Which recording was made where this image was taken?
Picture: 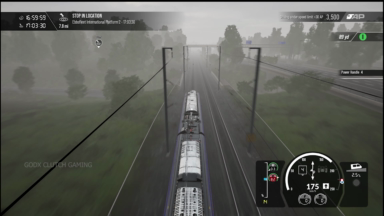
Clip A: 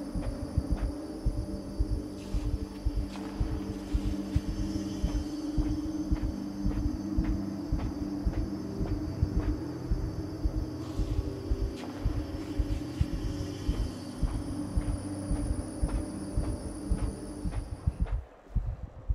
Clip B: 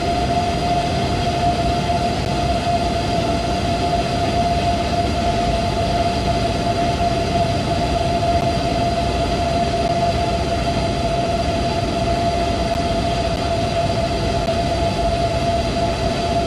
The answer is B